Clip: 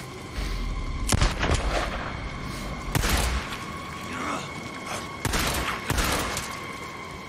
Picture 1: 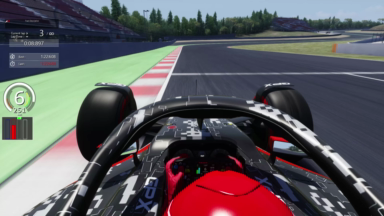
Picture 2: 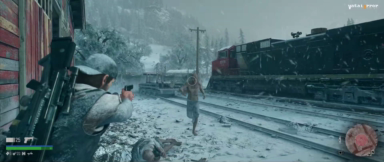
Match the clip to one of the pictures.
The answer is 2